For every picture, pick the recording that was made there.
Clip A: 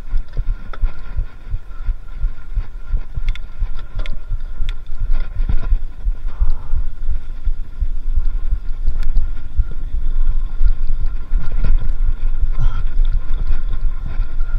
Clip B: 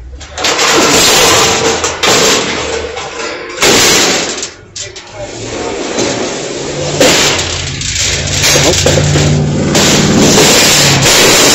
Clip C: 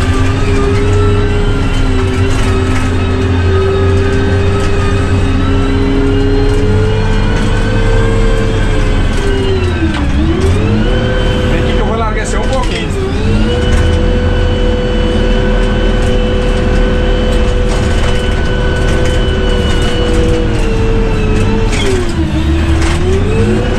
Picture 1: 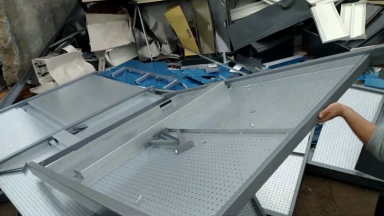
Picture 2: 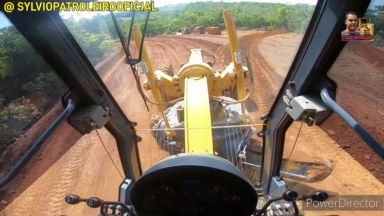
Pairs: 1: B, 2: C